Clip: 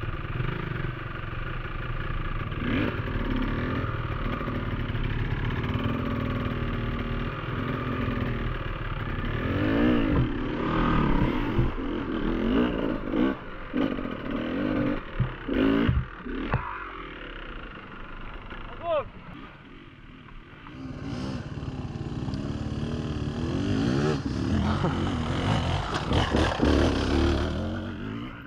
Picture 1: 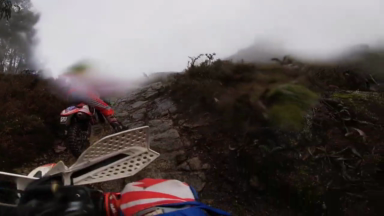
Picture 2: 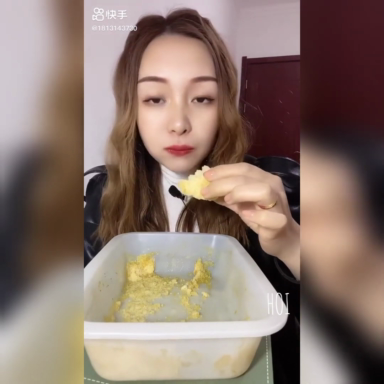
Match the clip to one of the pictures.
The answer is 1